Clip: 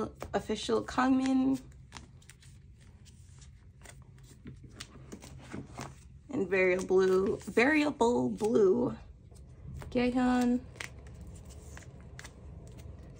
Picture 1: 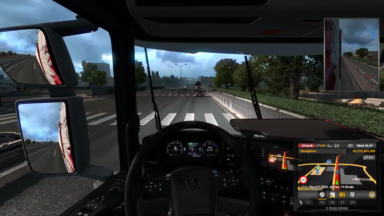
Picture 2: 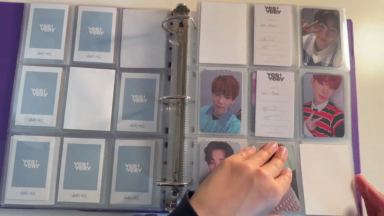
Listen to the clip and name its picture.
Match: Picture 2